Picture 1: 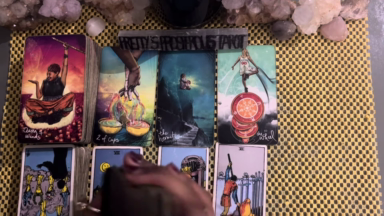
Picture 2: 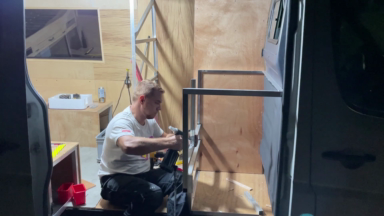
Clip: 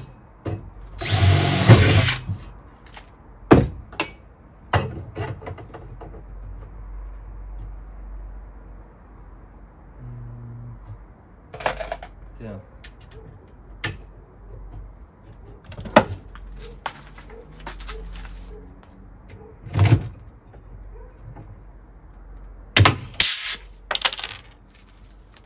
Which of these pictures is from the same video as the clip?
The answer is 2